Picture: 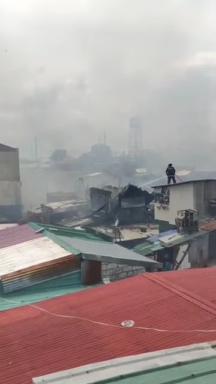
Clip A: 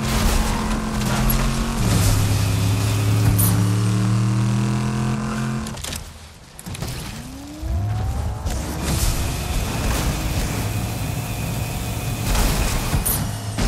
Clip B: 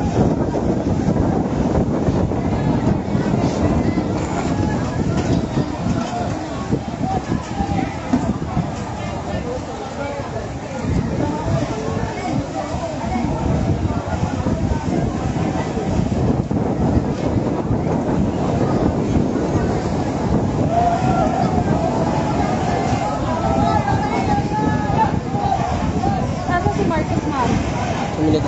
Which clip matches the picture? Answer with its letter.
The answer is B